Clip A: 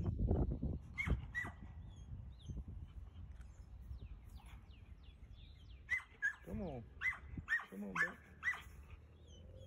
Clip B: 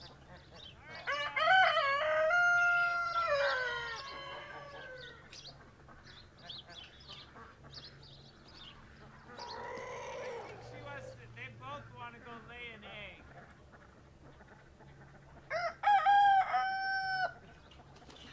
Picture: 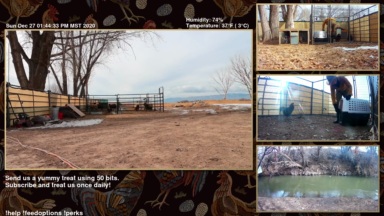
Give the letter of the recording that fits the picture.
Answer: B